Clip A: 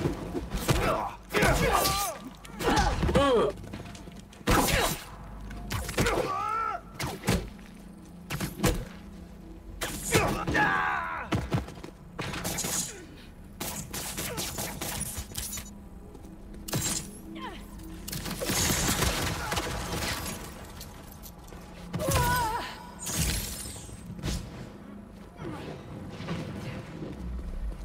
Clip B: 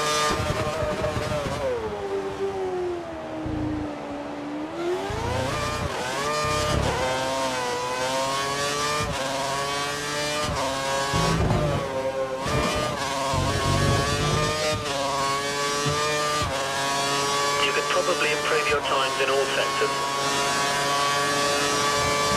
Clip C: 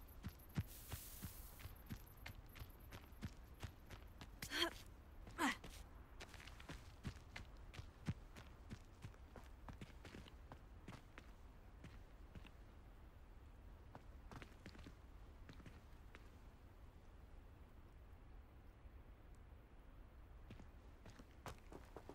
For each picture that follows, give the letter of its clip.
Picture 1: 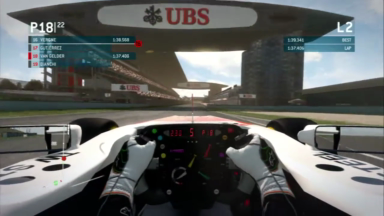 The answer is B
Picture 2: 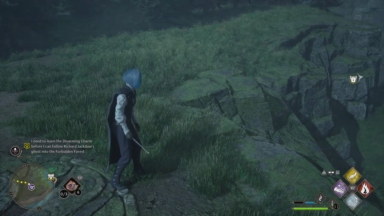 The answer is C